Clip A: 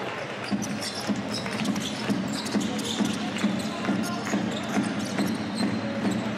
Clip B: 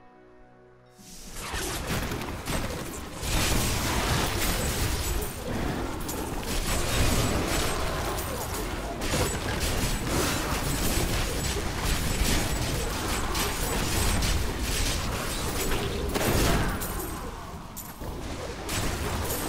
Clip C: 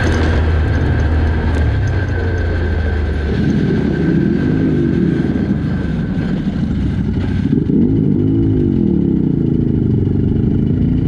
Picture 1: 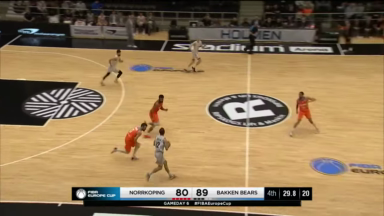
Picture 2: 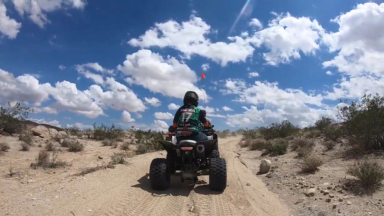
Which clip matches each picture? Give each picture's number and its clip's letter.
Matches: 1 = A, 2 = C